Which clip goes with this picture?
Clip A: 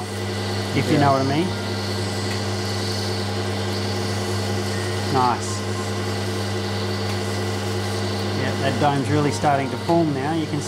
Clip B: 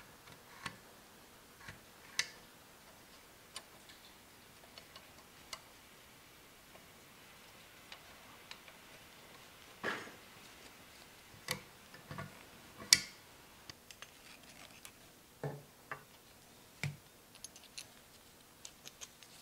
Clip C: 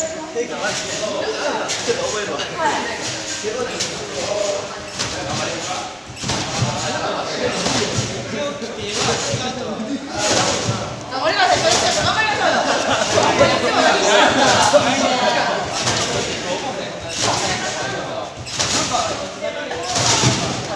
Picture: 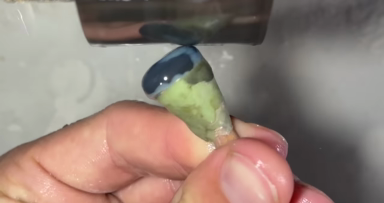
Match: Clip A